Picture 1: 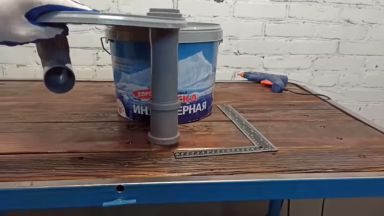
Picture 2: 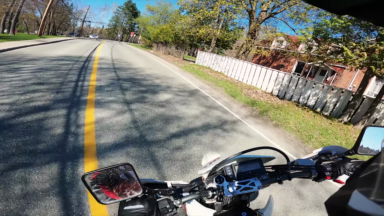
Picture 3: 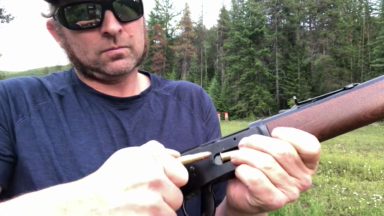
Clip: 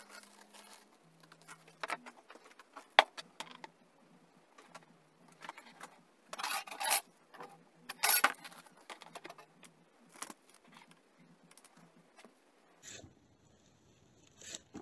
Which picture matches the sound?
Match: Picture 1